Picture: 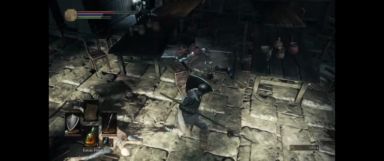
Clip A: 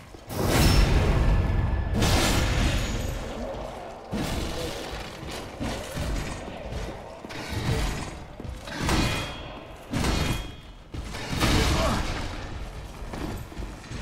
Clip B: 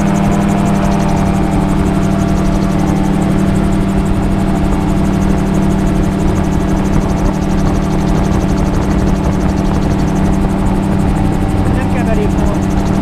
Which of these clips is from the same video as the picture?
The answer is A